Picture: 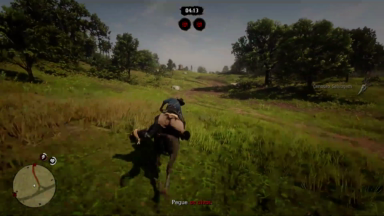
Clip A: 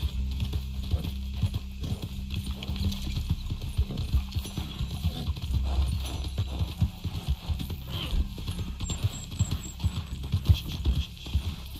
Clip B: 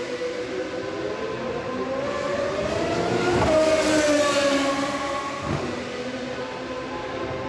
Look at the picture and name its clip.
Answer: A